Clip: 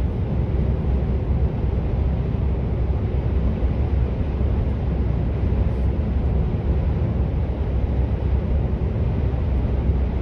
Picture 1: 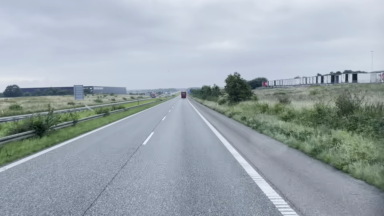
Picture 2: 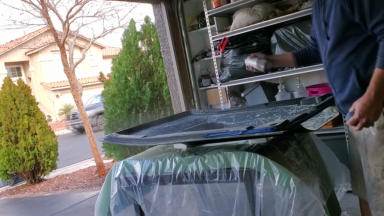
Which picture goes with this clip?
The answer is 1